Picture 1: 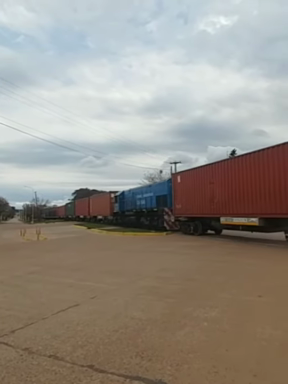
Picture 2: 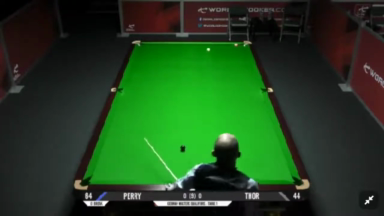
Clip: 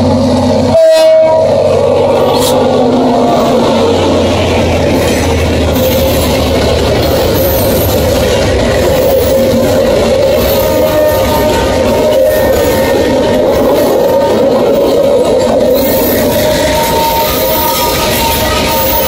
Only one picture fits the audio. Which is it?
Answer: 1